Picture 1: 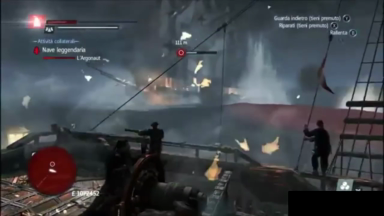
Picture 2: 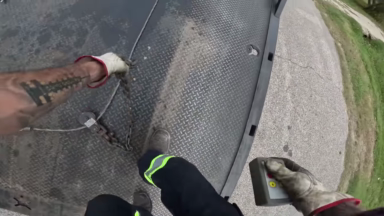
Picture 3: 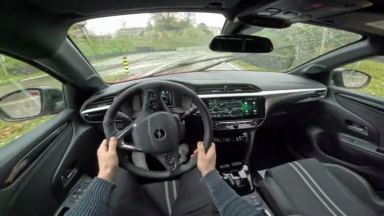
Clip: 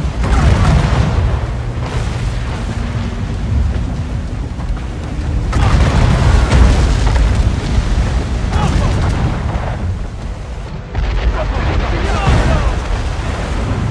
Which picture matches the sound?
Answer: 1